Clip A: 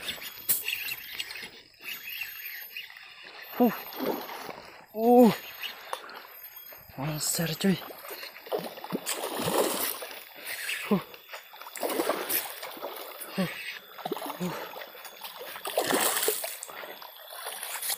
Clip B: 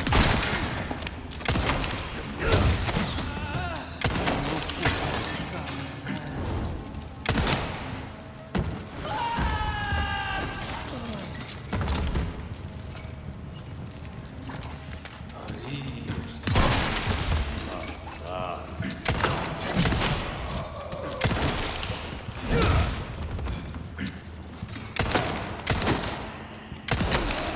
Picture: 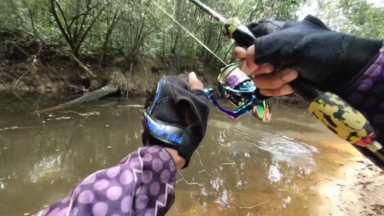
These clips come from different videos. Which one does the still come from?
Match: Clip A